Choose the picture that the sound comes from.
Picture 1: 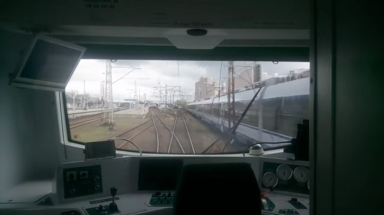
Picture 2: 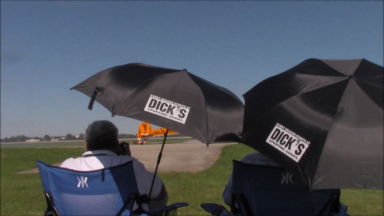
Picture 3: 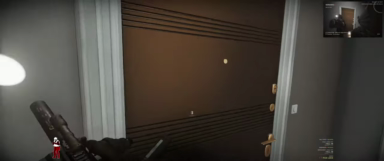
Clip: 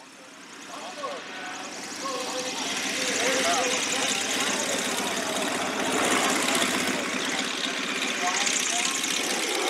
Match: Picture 2